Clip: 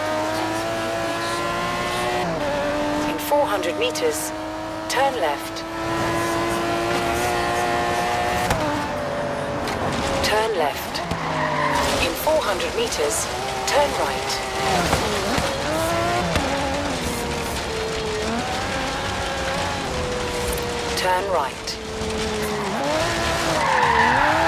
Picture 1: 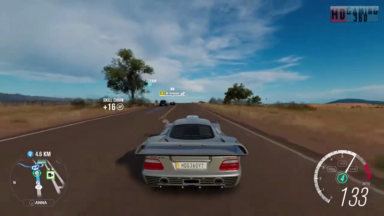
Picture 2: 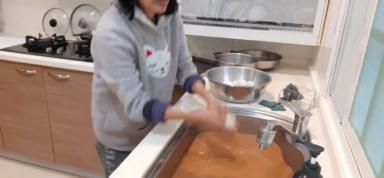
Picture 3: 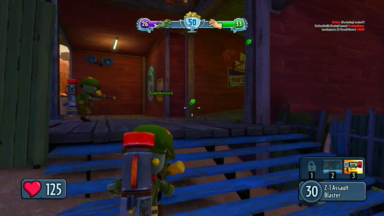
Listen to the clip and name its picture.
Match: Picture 1